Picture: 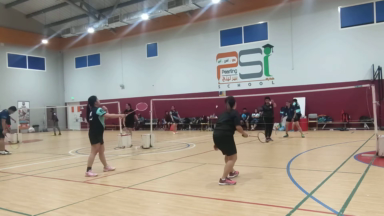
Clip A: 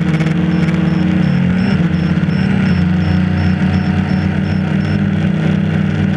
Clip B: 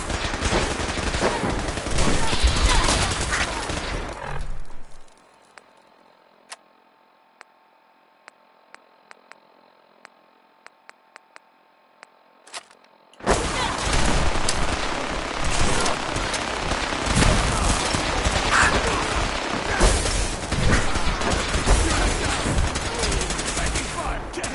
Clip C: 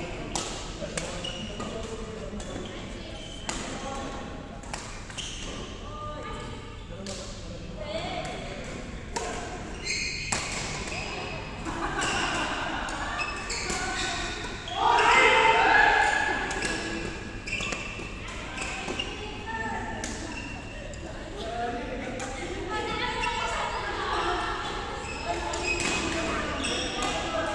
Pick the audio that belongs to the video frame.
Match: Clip C